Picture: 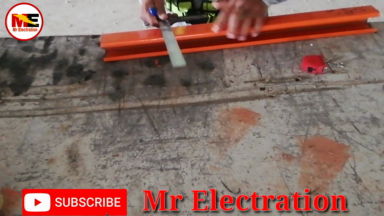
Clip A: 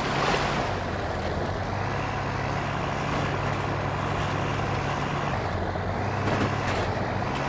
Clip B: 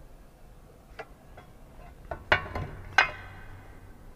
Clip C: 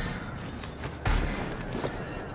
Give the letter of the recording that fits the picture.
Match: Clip B